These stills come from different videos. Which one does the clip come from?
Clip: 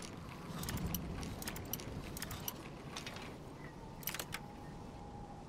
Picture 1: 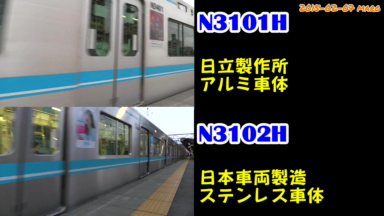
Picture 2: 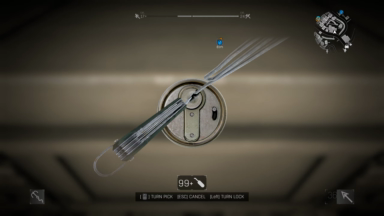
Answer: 2